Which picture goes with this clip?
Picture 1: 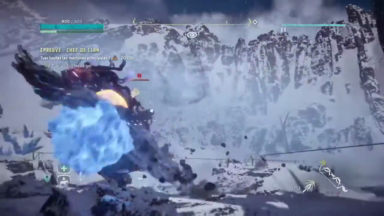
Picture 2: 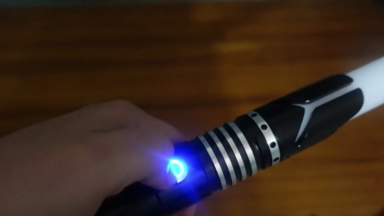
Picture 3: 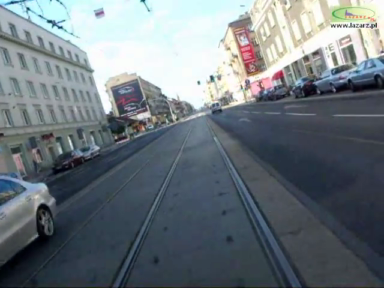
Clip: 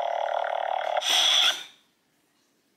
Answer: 2